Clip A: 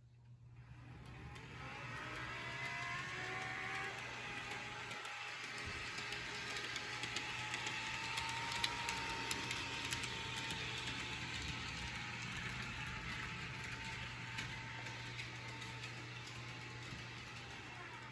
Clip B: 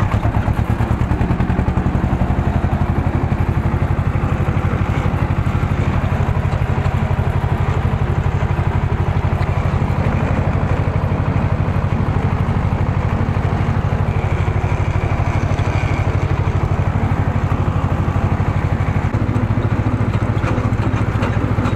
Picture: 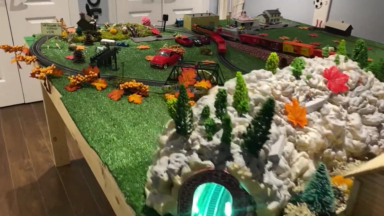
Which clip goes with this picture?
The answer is A